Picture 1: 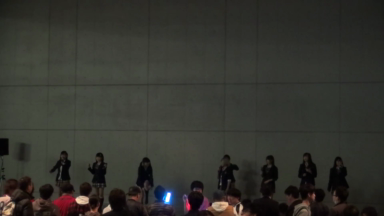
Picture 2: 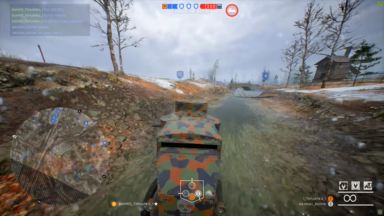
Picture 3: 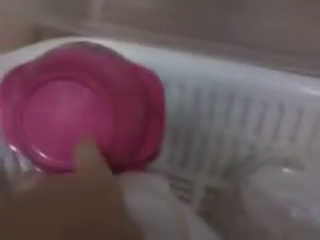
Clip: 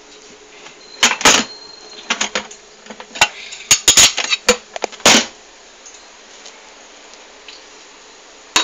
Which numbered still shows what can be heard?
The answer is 3